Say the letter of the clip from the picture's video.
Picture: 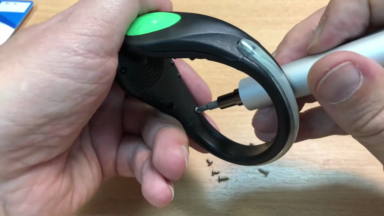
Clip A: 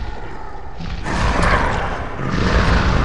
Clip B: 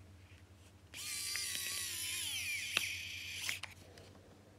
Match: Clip B